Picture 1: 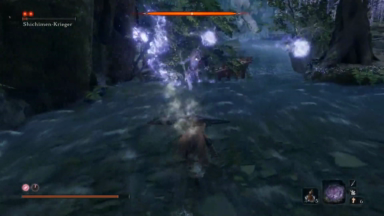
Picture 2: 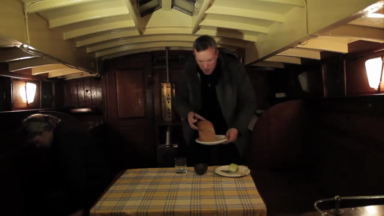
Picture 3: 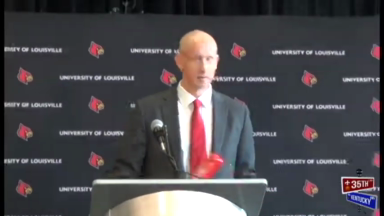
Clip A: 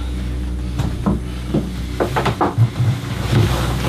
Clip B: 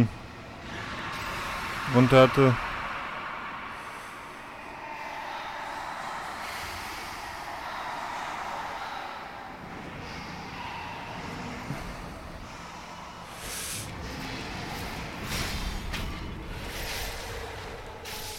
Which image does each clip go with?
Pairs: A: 2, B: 1